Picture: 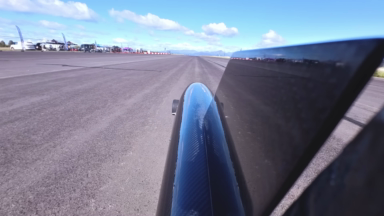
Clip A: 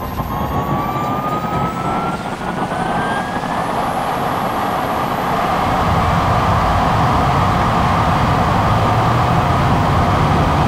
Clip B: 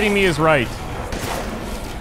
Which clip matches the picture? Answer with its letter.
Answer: A